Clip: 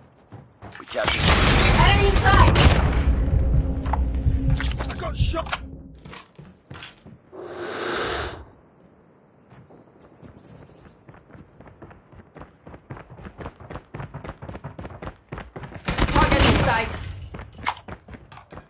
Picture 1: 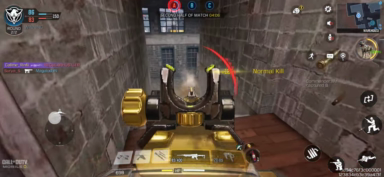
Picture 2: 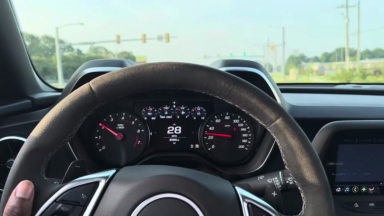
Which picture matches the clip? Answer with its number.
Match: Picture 1